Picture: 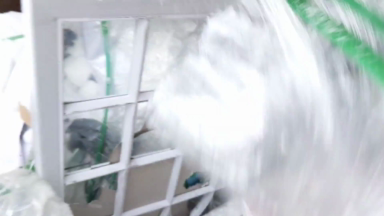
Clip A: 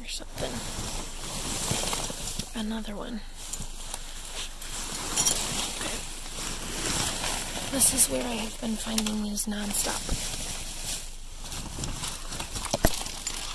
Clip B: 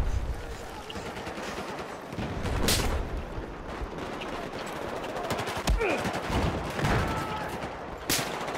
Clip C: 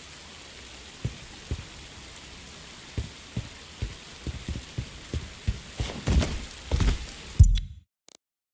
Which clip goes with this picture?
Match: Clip A